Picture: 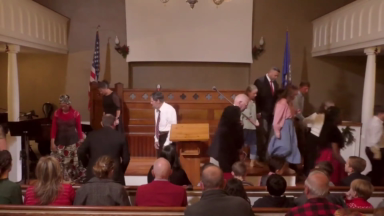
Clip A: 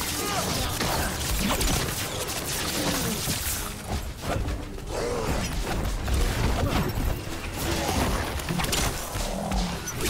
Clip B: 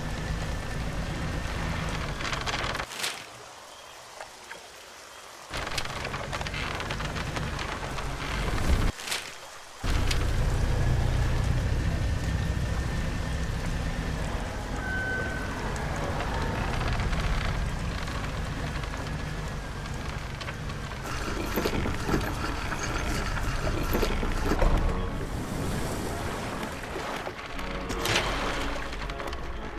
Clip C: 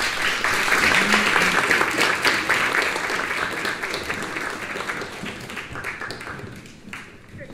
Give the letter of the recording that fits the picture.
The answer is C